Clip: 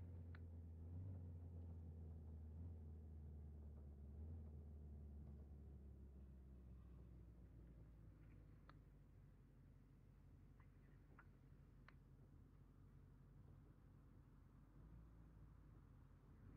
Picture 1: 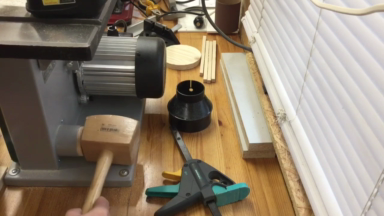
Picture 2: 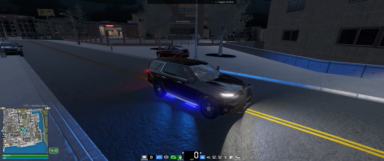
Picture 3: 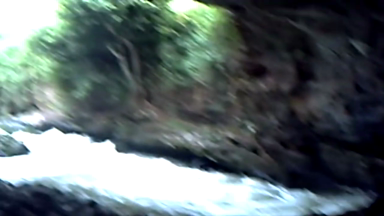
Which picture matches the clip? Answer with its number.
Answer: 2